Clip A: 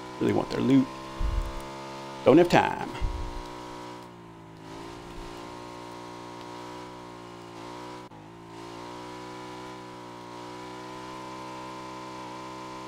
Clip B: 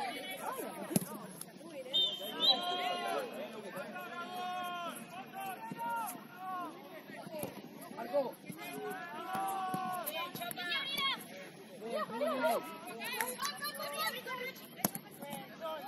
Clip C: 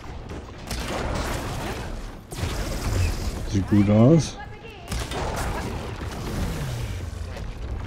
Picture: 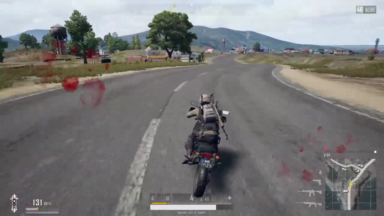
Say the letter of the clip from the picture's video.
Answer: A